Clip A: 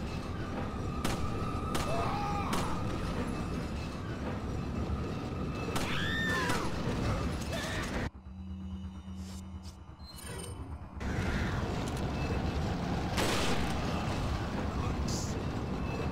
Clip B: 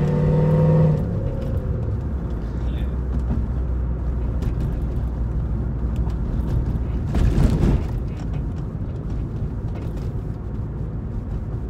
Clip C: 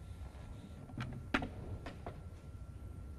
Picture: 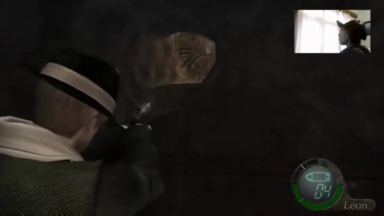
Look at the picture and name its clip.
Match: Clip A